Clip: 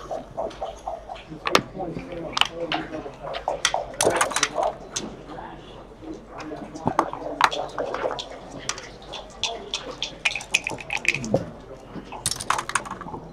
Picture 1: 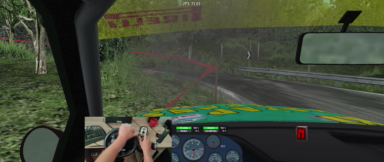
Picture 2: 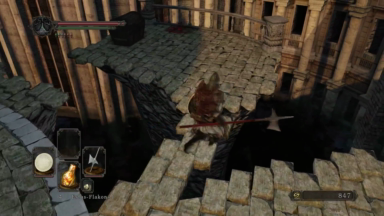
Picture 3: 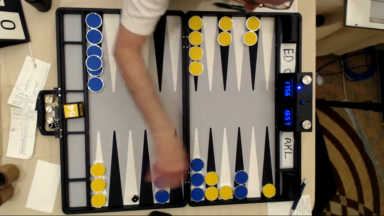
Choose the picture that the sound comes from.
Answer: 3